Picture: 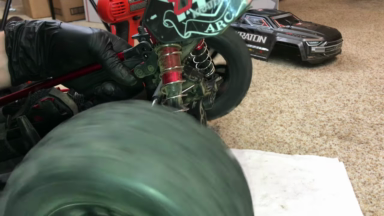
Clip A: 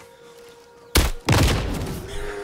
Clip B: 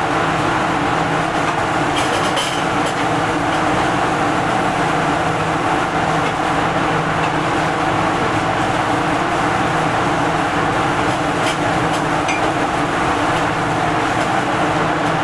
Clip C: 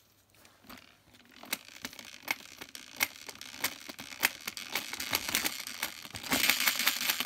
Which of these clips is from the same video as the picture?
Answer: C